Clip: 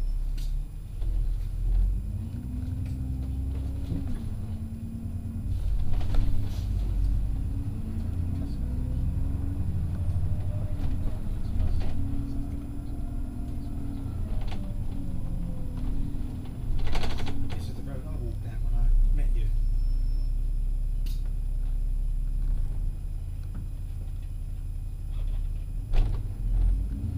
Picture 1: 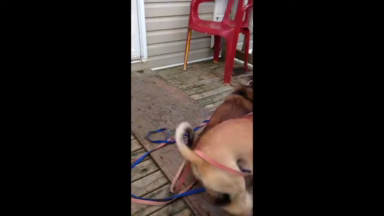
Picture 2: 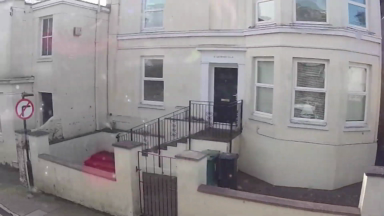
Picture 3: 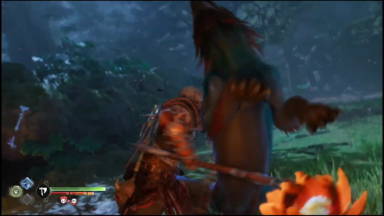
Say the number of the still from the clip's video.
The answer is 2